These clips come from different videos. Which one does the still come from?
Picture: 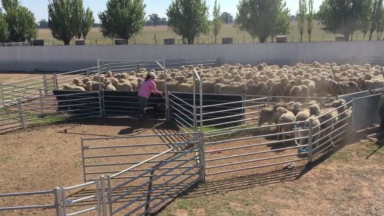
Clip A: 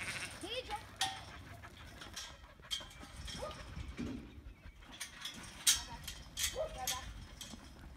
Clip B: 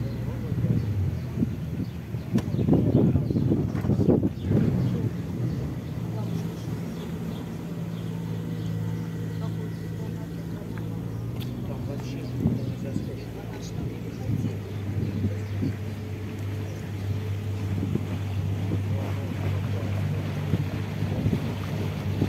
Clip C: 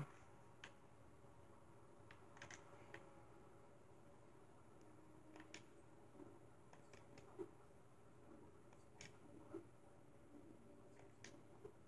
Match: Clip A